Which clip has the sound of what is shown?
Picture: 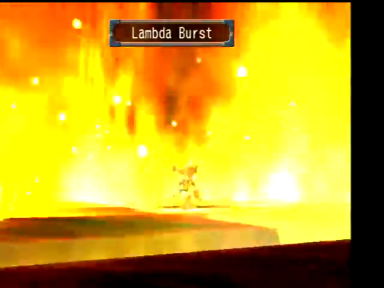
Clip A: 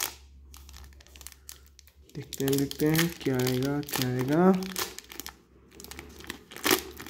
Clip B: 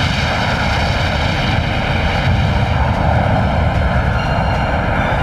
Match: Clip B